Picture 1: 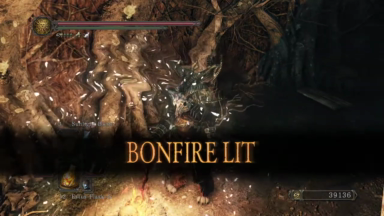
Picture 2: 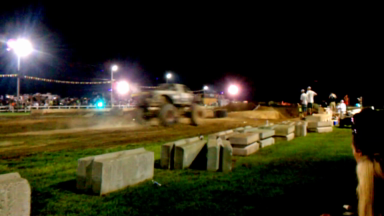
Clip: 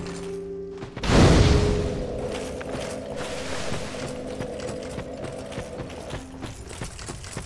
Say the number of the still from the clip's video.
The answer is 1